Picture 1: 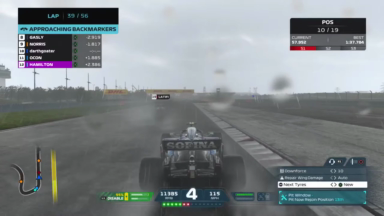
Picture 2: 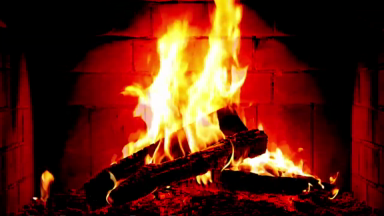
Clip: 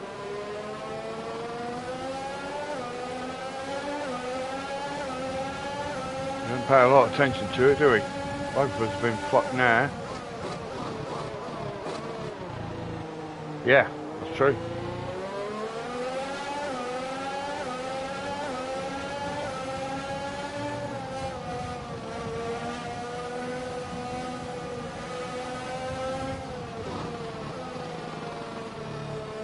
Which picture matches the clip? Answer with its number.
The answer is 1